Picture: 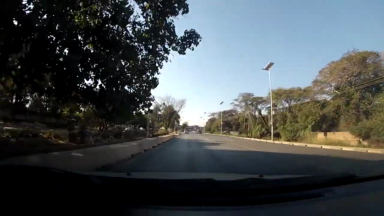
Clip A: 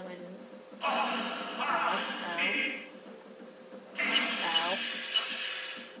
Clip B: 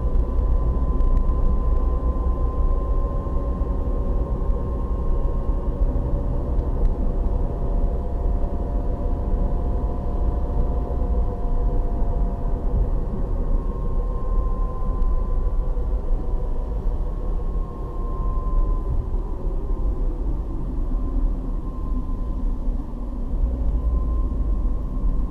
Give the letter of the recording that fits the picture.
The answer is B